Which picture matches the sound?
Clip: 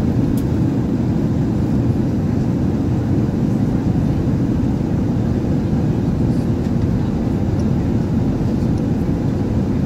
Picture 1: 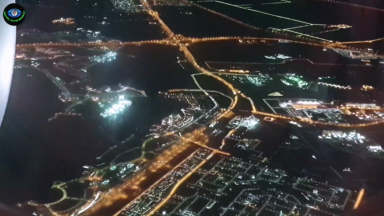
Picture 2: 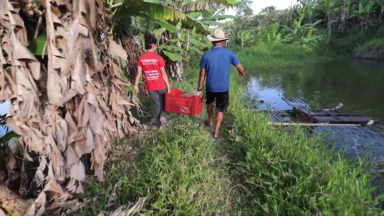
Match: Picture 1